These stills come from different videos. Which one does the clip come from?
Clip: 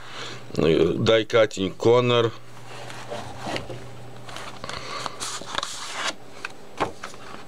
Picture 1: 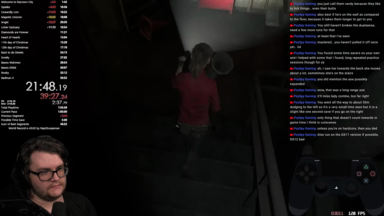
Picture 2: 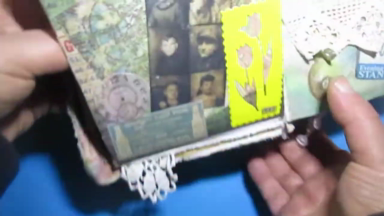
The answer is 2